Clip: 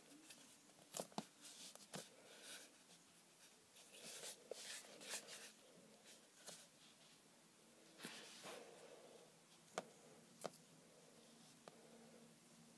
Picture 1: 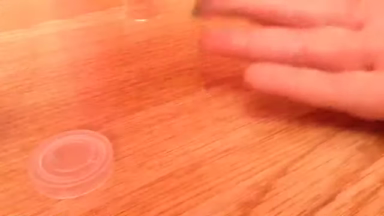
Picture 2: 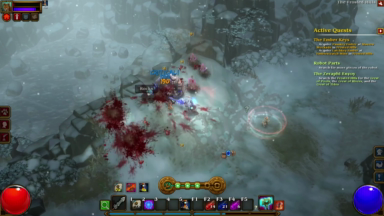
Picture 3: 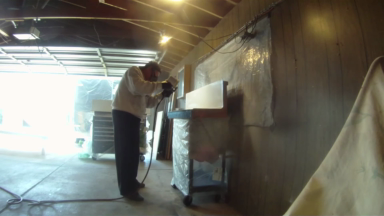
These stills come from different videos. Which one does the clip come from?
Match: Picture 1